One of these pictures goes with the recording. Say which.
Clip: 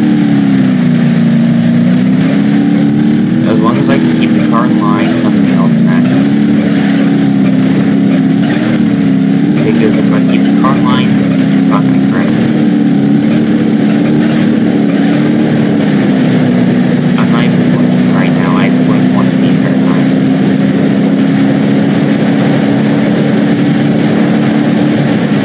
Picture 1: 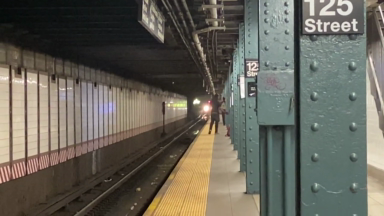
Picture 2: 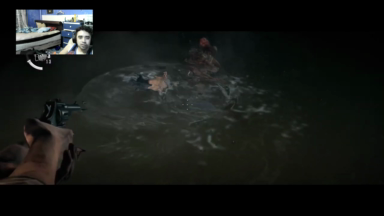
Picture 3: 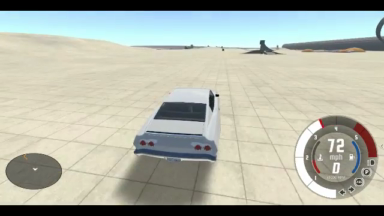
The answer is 3